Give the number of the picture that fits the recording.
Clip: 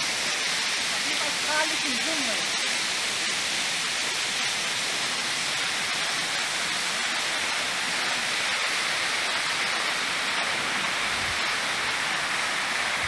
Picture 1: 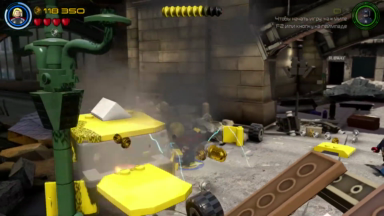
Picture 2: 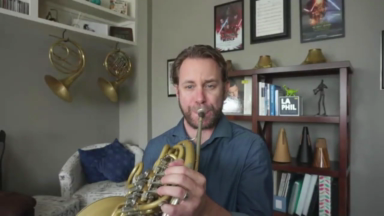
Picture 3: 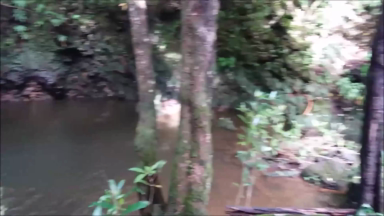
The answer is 3